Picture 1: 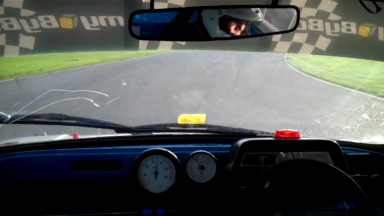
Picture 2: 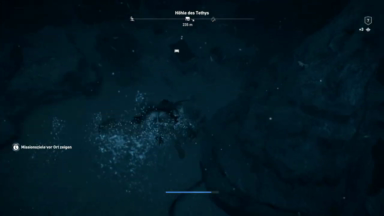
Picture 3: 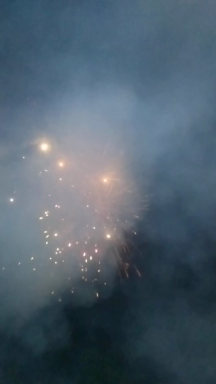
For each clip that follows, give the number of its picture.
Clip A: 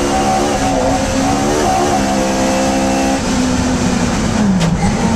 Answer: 1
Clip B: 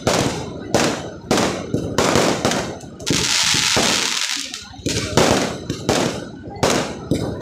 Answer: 3